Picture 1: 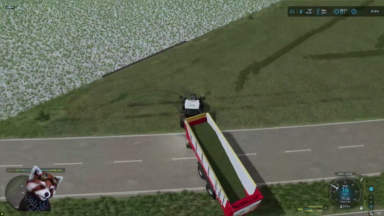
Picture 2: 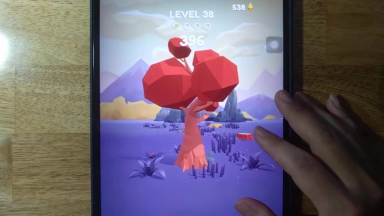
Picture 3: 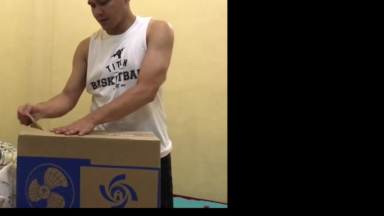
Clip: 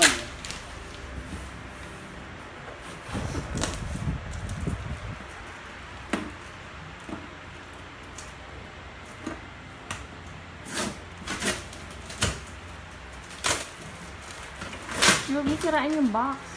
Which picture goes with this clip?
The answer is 3